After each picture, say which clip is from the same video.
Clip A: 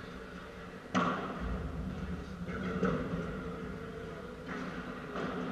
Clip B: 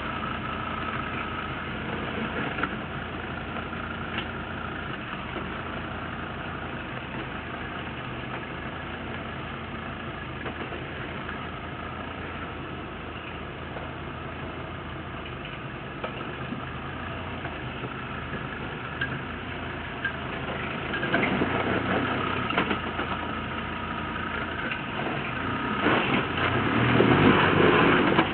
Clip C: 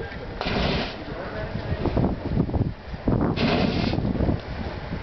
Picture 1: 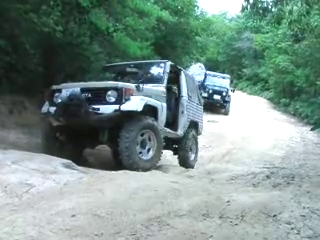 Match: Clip B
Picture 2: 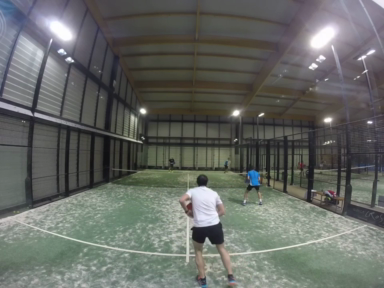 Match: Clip A